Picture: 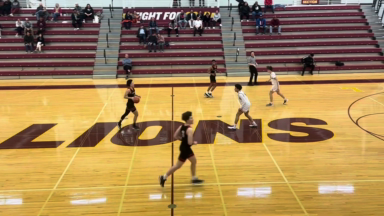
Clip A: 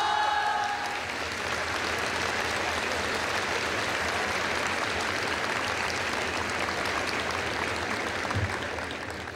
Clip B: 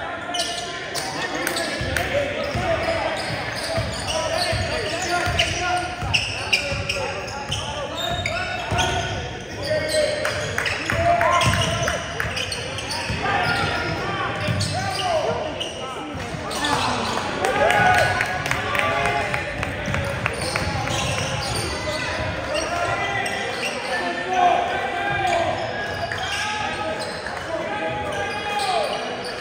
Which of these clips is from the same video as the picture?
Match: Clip B